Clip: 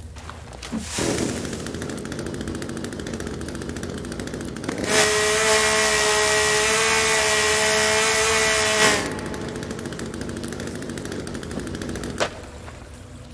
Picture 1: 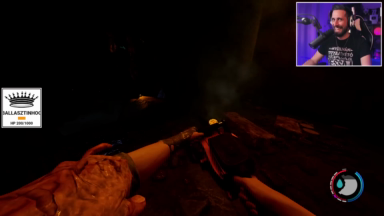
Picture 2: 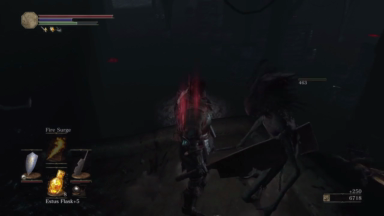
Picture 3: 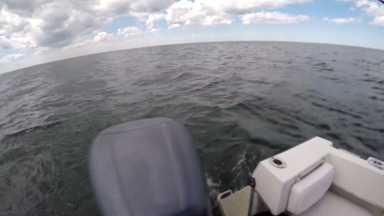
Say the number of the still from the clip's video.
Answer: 1